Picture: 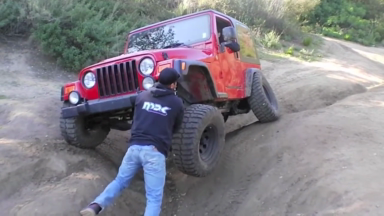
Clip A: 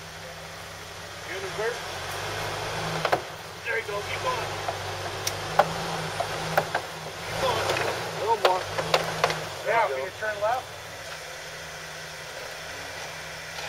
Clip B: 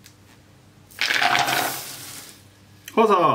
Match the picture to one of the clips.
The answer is A